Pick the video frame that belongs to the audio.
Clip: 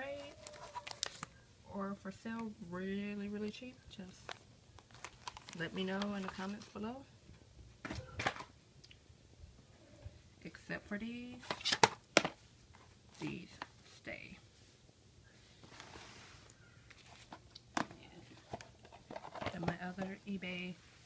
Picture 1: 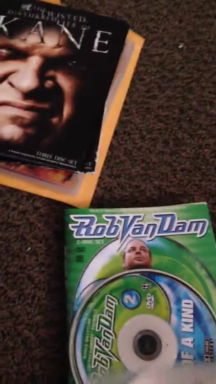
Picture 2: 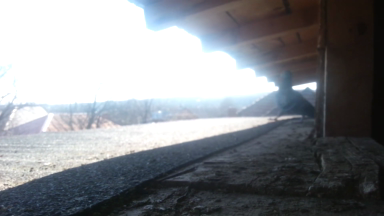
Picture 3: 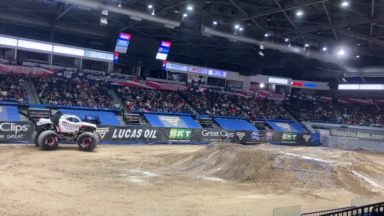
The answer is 1